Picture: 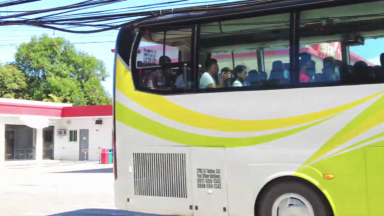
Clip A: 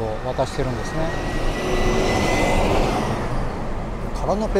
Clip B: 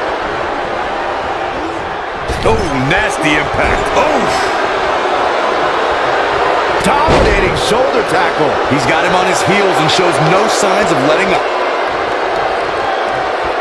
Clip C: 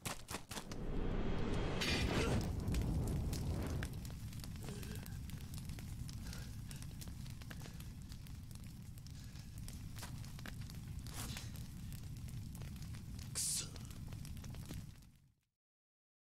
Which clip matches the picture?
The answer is A